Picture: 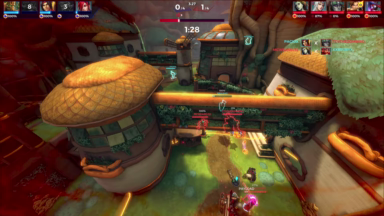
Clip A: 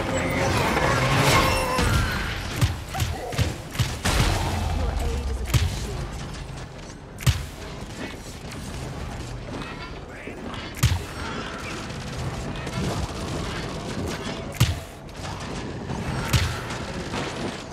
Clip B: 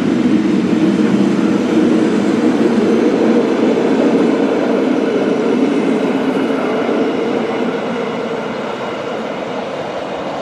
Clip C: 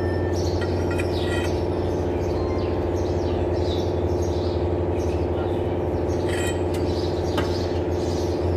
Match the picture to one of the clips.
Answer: A